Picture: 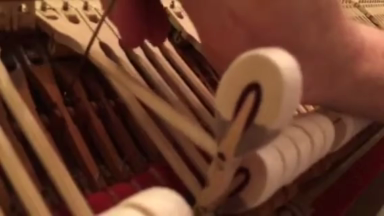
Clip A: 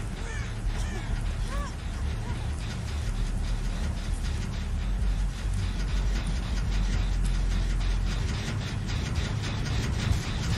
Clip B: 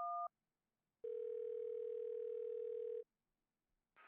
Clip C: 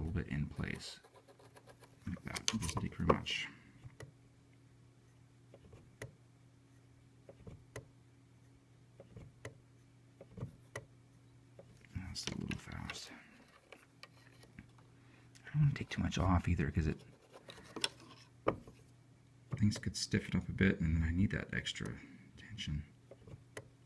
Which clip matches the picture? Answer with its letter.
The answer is C